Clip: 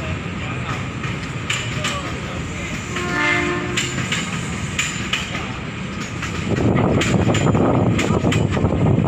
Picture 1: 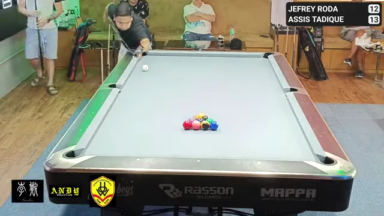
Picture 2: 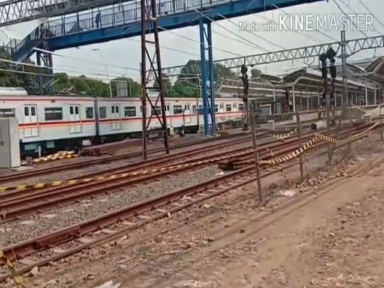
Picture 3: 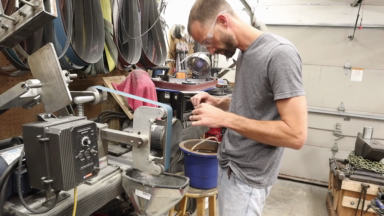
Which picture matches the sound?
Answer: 2